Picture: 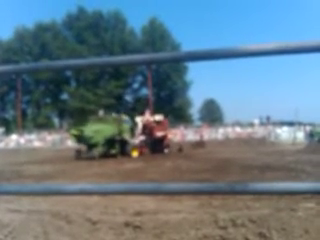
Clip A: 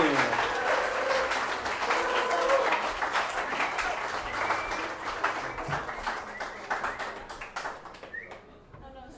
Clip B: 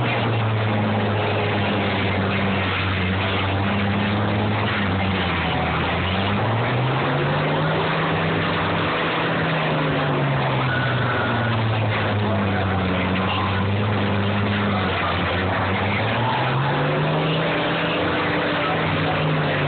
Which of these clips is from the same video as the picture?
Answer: B